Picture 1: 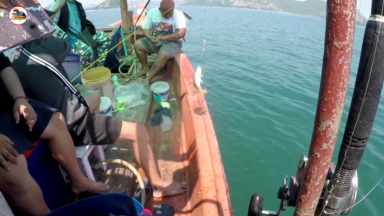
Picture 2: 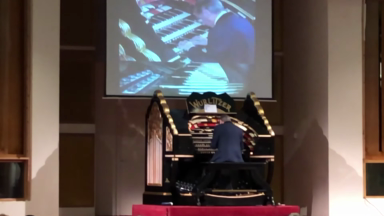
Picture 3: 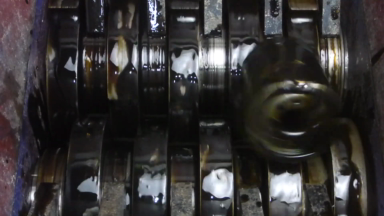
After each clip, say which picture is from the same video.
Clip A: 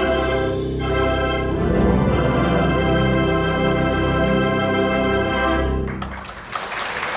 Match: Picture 2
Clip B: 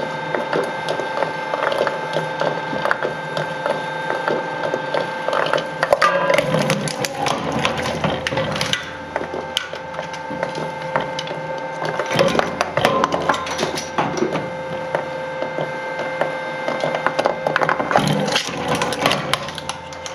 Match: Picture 3